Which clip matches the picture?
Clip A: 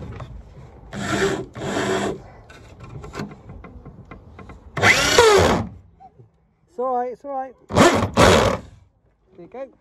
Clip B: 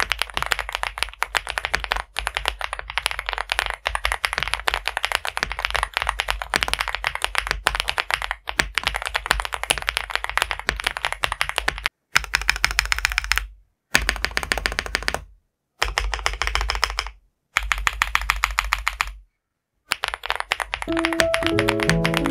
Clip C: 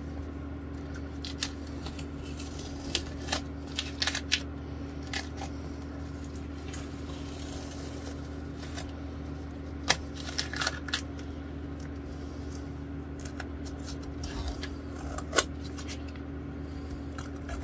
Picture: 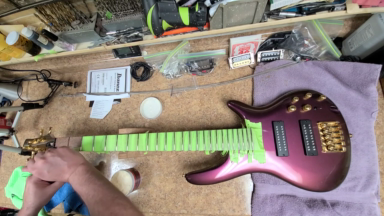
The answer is C